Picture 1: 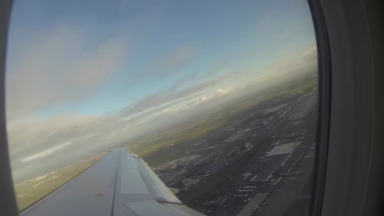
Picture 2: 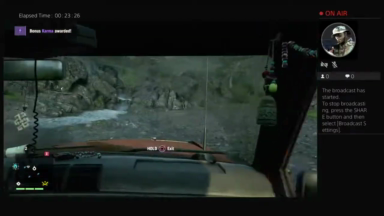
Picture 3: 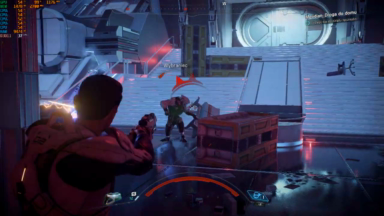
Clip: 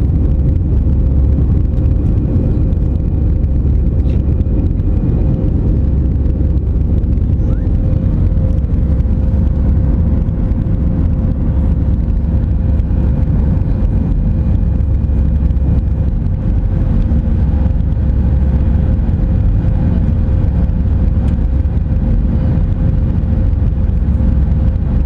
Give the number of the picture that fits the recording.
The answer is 1